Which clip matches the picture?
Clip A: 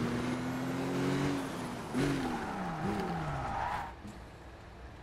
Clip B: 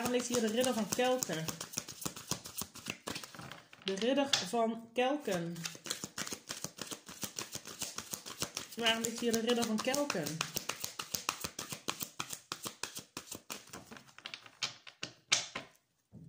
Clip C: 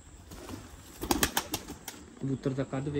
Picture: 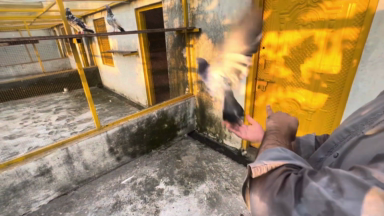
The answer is C